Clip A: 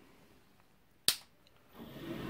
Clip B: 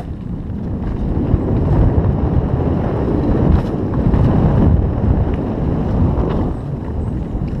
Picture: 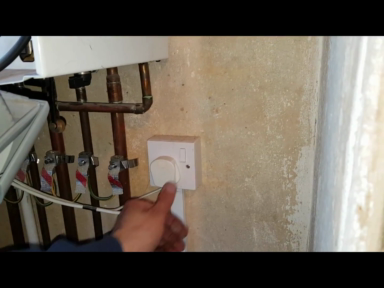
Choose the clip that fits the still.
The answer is A